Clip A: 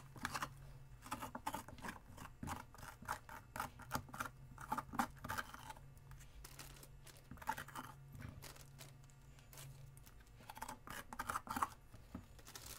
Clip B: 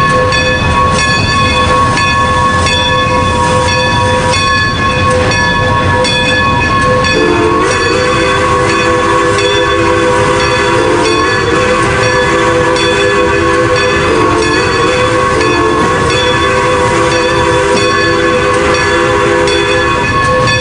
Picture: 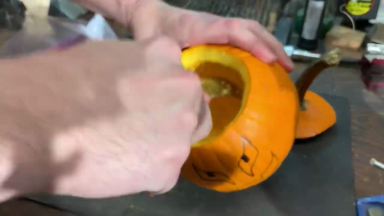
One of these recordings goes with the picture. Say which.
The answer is A